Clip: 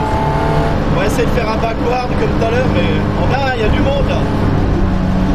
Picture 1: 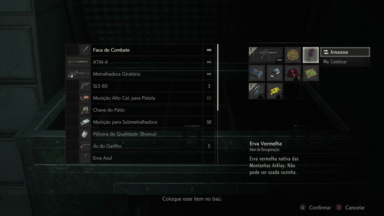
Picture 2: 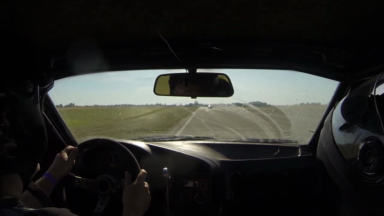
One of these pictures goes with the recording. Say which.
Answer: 2